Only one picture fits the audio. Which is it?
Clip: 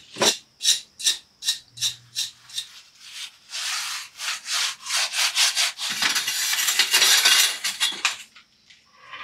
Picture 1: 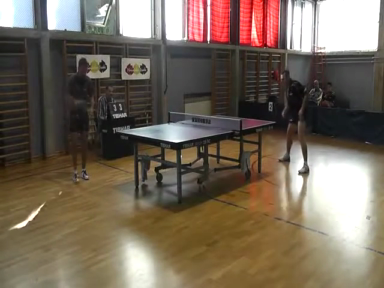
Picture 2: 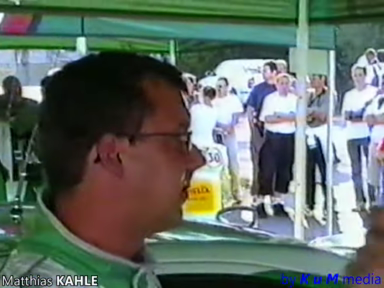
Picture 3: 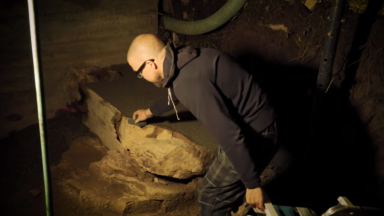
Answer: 3